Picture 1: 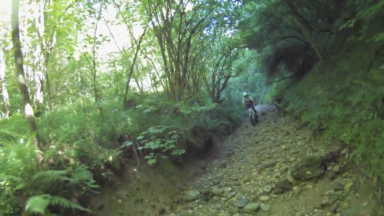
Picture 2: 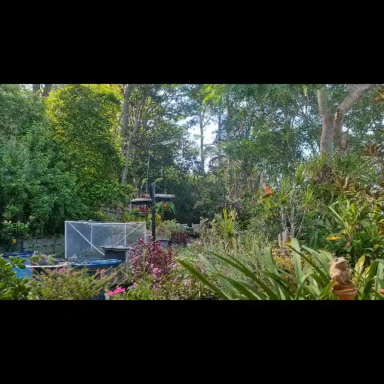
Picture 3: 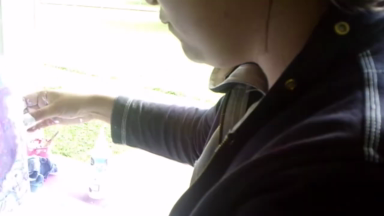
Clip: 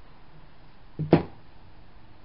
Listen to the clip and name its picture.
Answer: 3